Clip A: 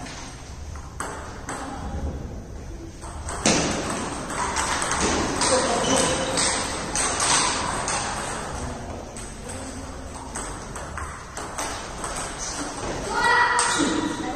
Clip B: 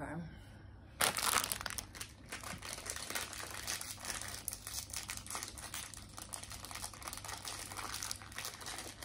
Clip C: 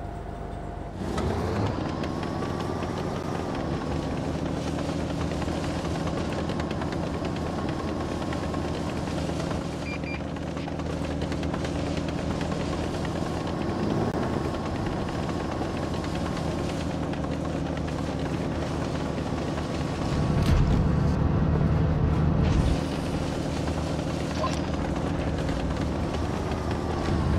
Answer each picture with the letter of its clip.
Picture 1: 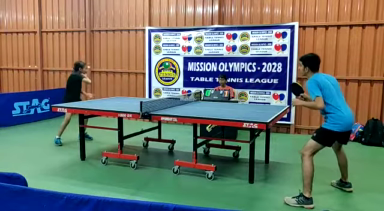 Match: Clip A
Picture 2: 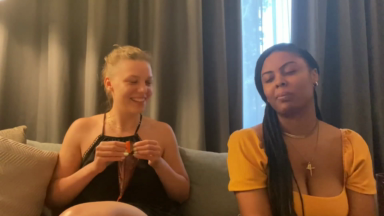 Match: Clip B